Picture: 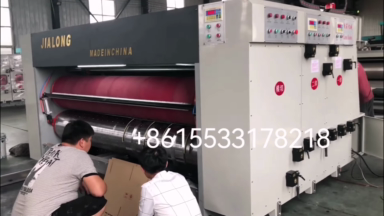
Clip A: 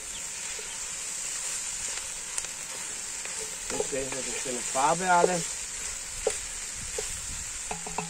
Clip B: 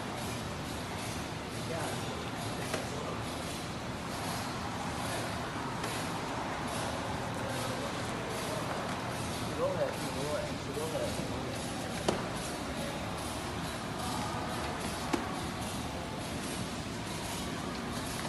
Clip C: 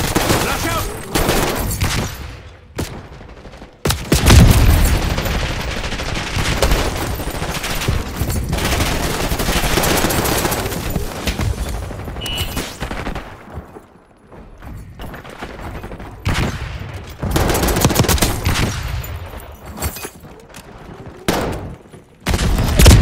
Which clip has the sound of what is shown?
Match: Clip B